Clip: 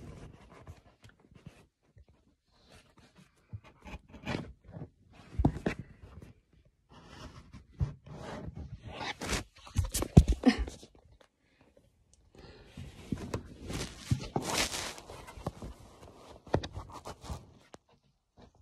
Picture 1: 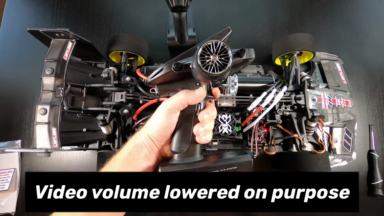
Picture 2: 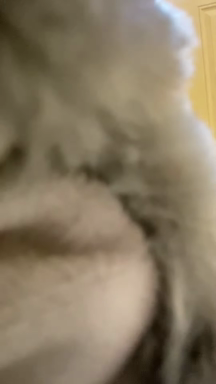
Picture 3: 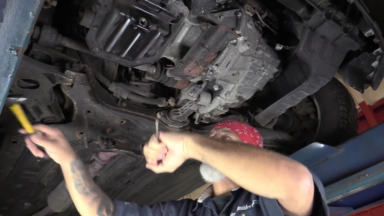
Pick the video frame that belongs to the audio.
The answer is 2